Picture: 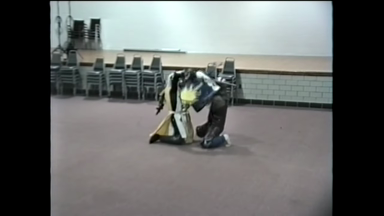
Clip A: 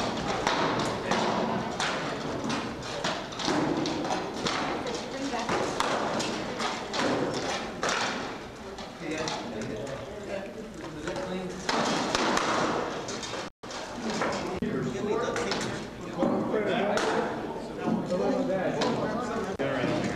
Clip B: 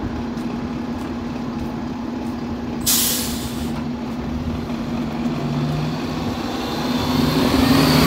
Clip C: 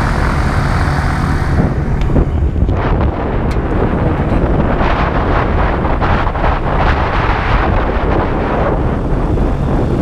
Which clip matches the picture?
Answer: A